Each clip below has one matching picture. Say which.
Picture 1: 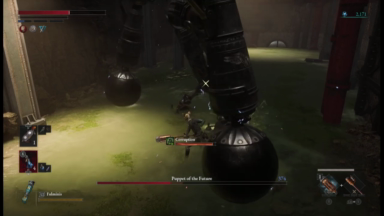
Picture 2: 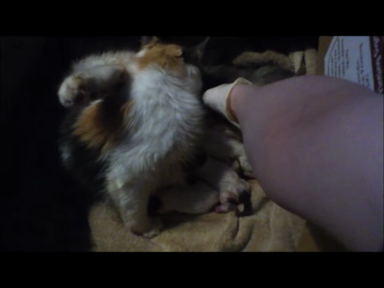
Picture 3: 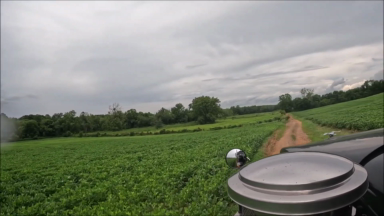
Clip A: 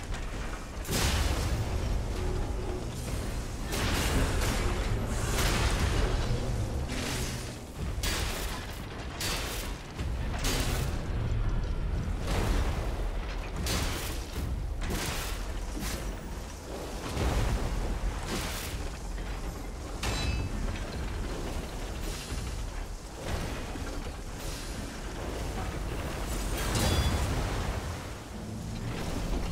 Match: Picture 1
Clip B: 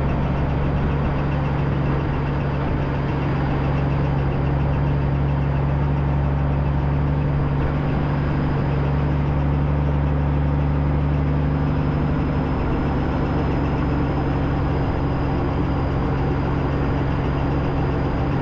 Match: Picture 3